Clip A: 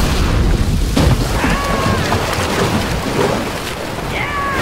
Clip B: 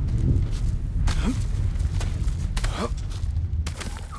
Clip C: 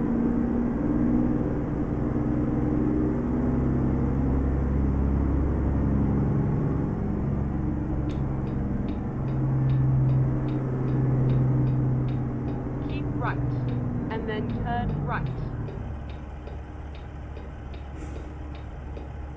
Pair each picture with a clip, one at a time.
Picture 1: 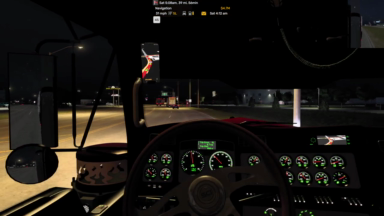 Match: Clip C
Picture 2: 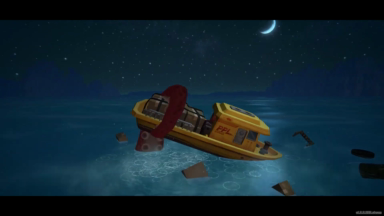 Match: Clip A